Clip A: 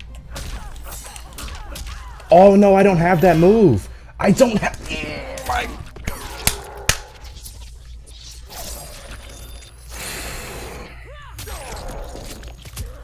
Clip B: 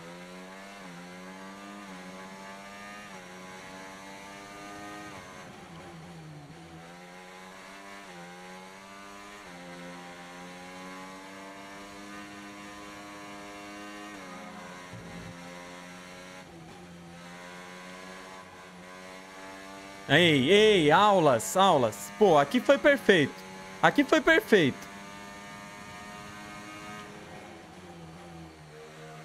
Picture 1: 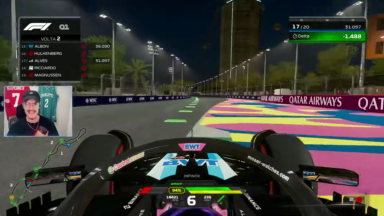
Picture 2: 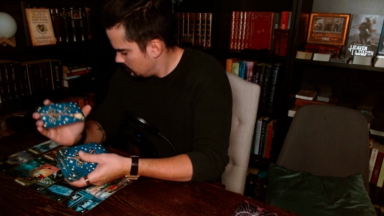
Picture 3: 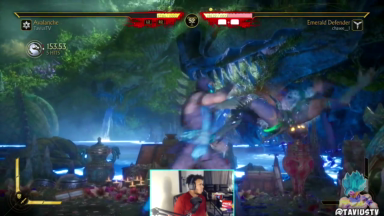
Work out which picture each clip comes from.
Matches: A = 3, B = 1